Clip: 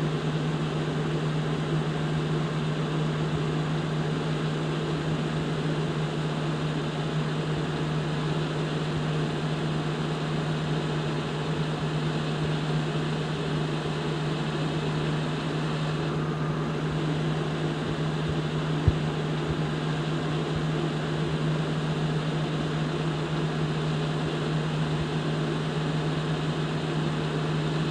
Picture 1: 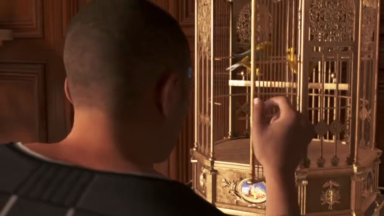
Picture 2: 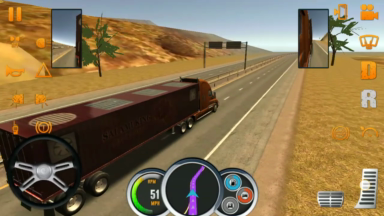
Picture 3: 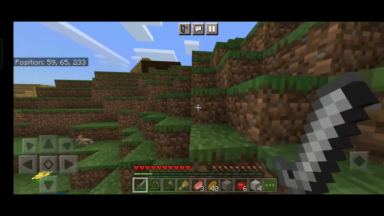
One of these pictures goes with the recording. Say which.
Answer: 2